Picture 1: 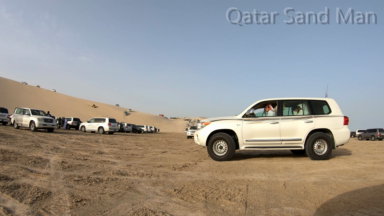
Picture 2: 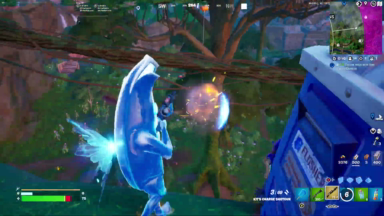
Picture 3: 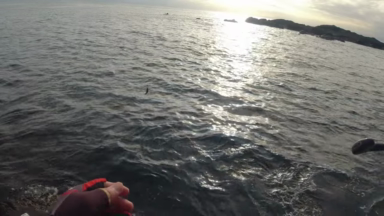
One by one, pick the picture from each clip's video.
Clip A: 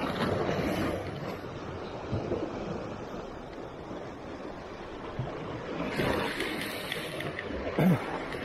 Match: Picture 3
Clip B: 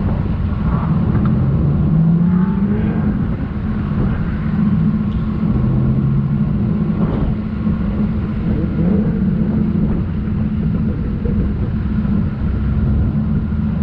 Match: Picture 1